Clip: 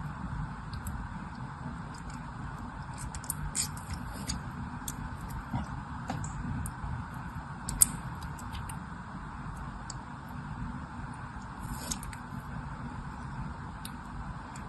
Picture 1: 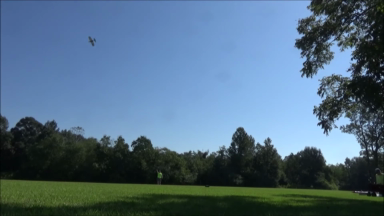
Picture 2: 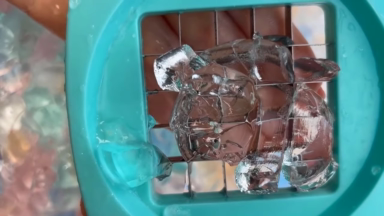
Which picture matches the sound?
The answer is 2